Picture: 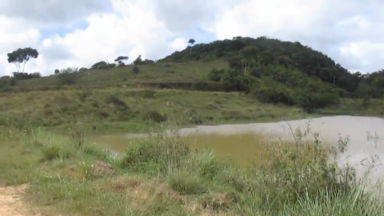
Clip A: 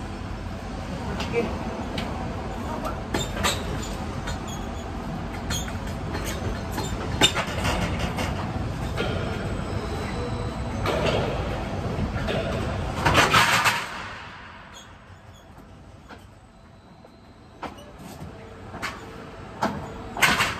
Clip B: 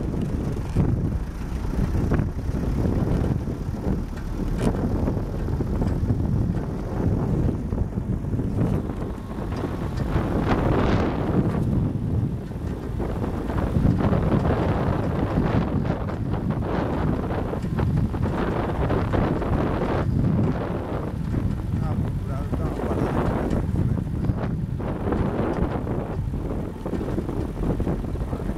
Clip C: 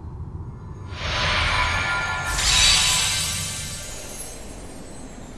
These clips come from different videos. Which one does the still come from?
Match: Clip B